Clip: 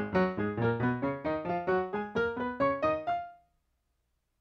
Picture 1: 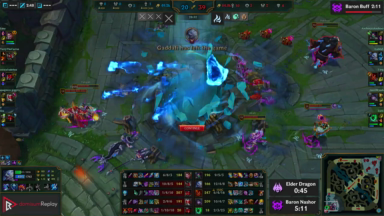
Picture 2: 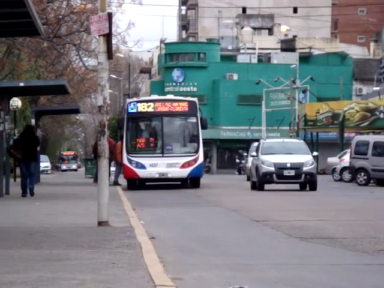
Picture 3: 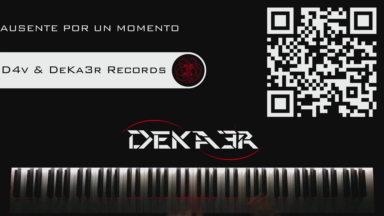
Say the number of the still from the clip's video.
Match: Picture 3